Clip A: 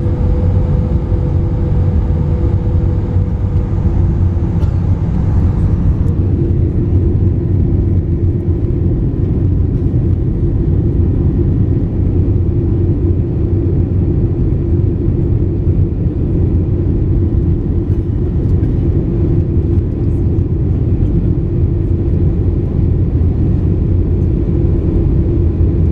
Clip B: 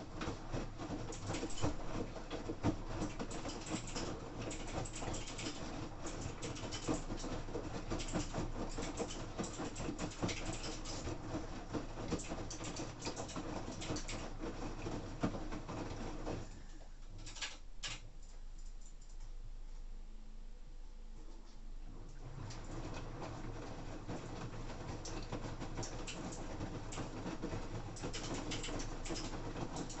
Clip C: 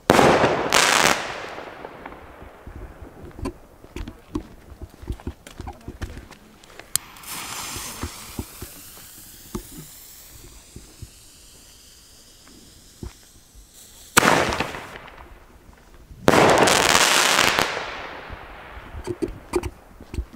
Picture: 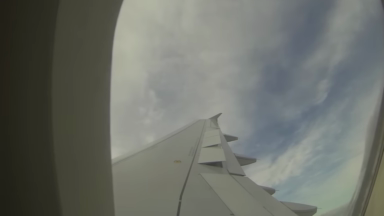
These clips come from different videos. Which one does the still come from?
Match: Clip A